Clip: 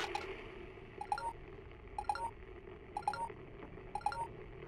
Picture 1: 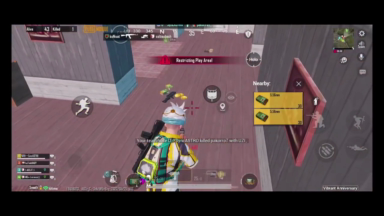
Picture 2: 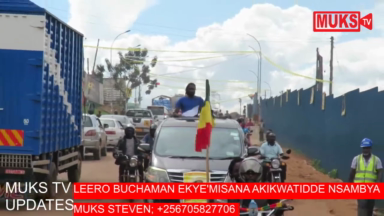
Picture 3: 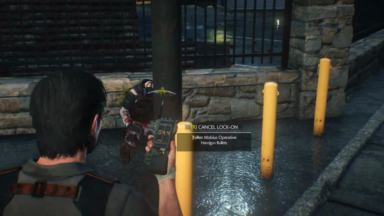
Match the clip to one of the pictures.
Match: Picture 3